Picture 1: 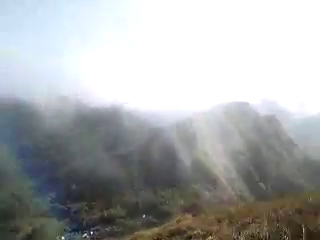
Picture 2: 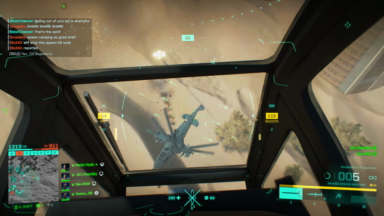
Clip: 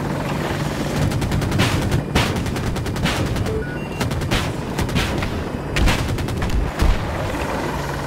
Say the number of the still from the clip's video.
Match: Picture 2